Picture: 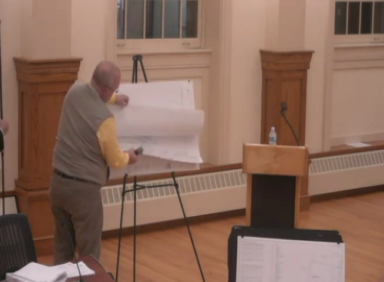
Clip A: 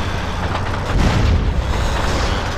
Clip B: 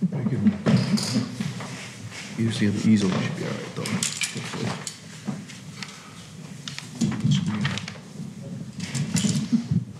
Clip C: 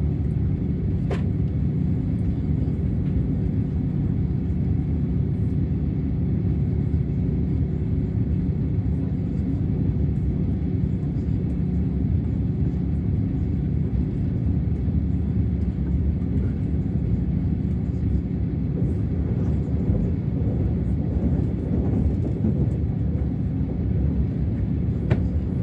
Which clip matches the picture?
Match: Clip B